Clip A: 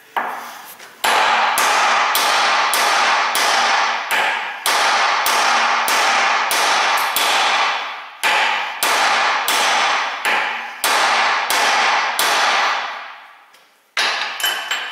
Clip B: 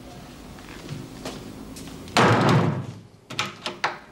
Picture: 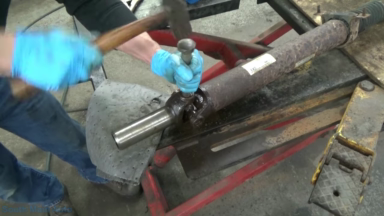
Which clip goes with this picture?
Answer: A